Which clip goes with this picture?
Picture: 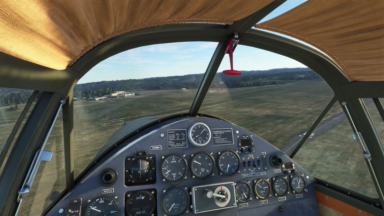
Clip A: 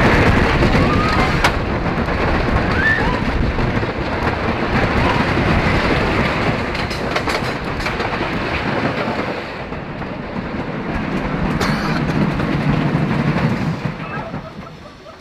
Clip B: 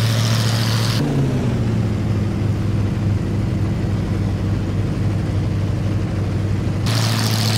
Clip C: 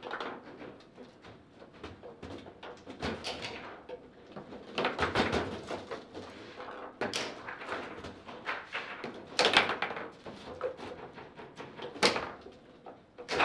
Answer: B